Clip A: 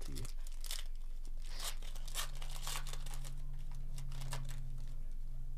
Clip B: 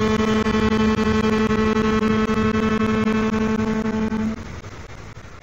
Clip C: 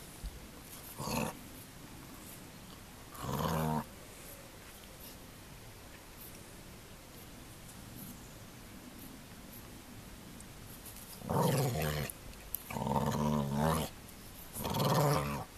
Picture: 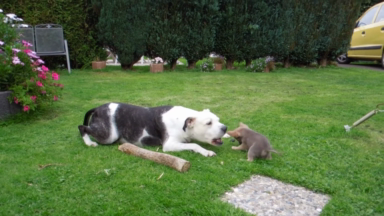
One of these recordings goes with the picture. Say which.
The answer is C